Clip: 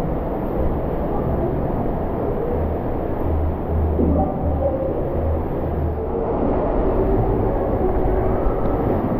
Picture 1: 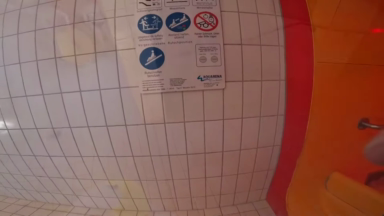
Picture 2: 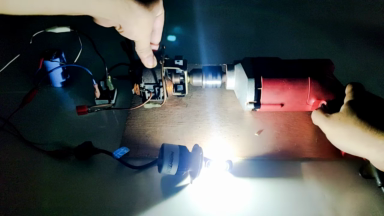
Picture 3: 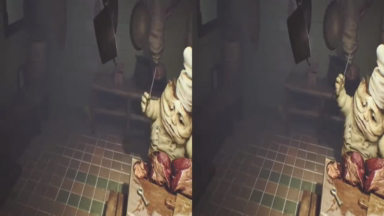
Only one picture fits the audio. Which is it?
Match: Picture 1